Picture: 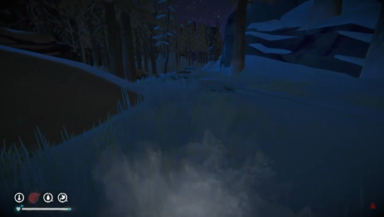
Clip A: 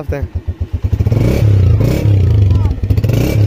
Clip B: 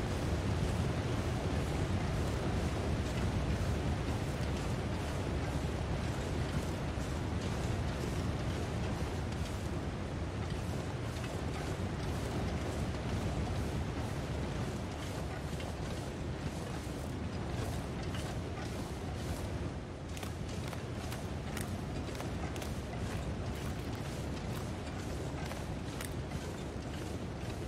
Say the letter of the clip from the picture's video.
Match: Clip B